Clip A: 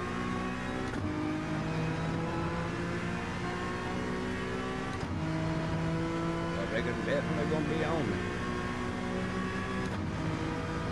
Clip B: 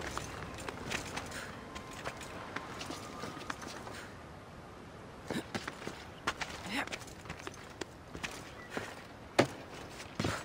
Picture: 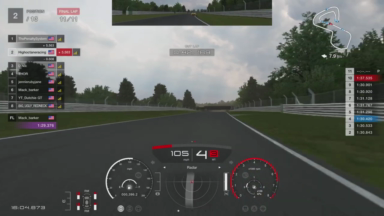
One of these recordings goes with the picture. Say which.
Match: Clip A